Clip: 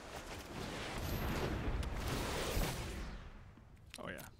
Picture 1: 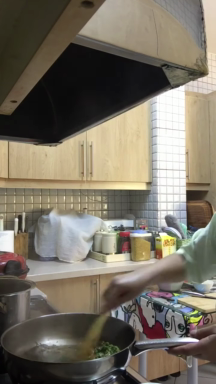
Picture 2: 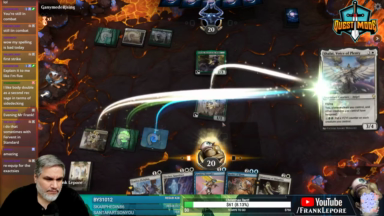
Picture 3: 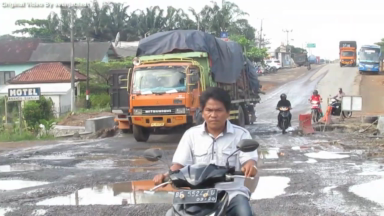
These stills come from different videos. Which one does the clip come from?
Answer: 2